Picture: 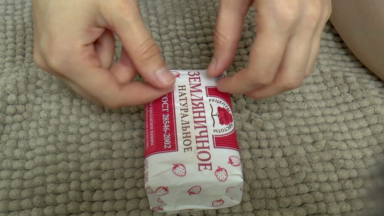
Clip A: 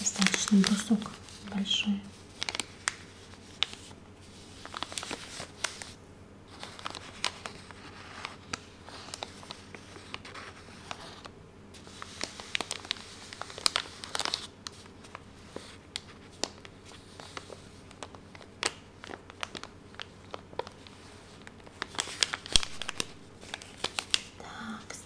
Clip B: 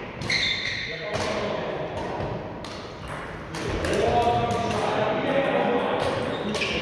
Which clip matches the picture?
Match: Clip A